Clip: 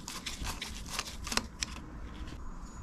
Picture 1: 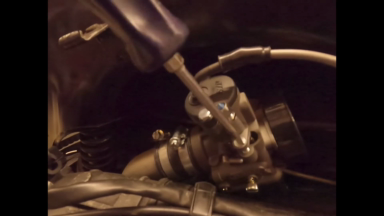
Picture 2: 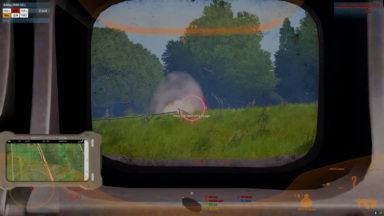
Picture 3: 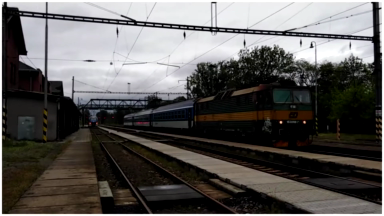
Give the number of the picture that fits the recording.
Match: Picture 1